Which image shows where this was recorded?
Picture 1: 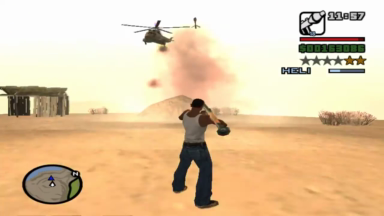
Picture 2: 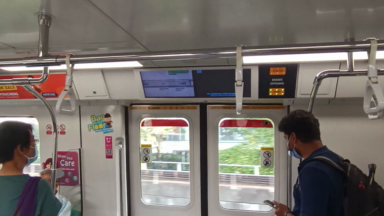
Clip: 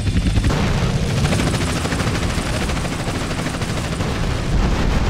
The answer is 1